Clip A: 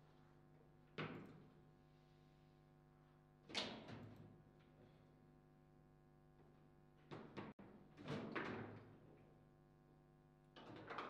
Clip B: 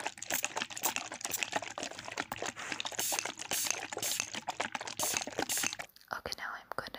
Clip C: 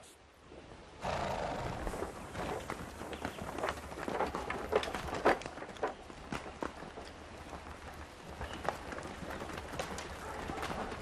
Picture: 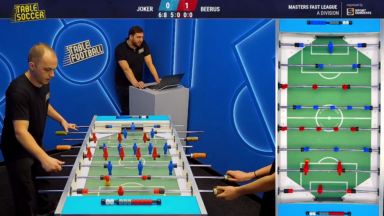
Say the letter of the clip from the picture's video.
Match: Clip A